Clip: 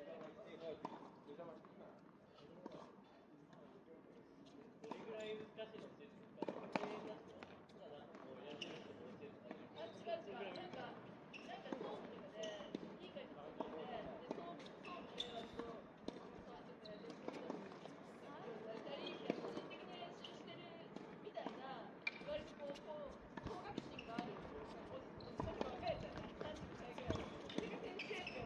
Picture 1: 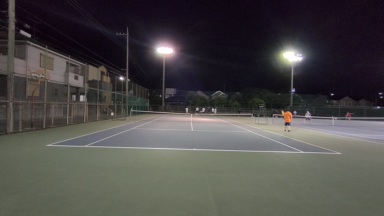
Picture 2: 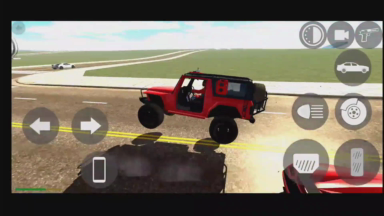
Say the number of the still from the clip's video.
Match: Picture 1